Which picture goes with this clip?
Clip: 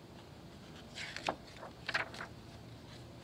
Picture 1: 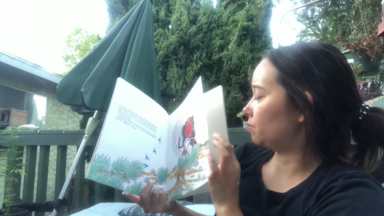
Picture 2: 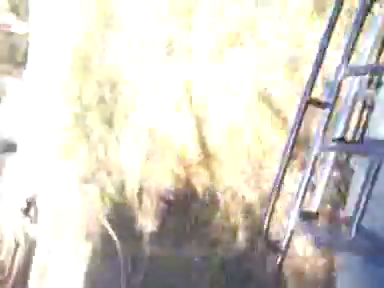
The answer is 1